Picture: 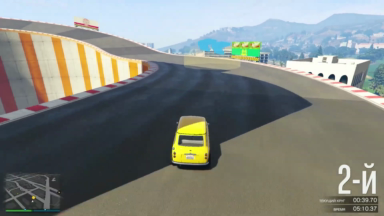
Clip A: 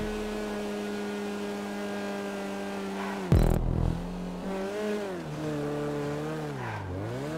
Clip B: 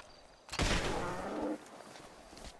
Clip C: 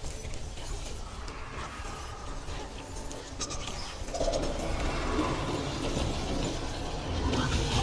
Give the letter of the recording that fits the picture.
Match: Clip A